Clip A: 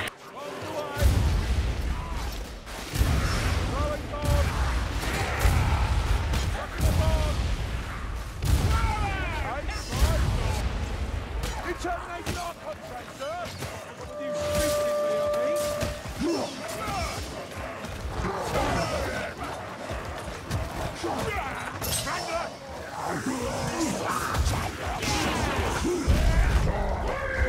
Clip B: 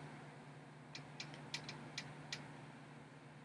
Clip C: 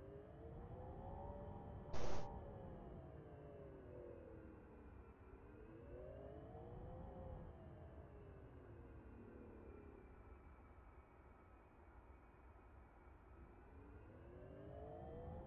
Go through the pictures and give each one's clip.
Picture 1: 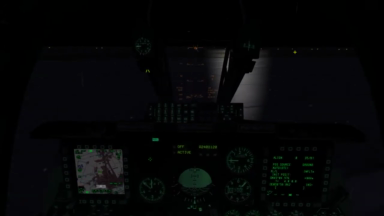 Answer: C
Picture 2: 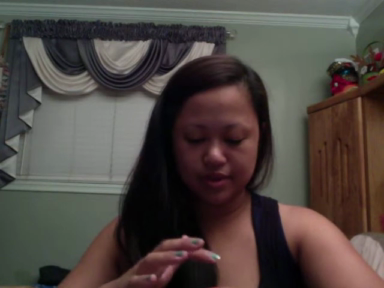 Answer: B